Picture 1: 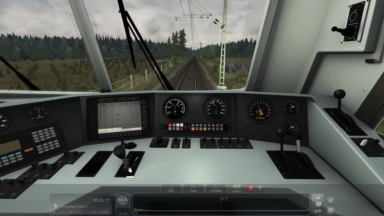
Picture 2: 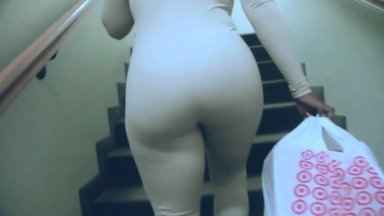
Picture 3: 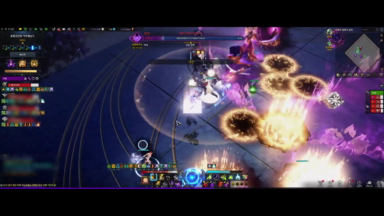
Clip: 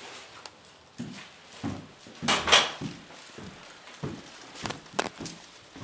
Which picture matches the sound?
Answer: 2